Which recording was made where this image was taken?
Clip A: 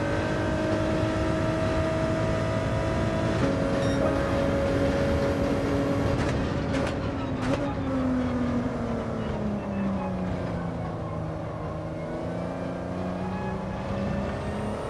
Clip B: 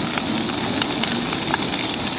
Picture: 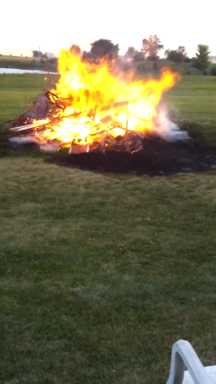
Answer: B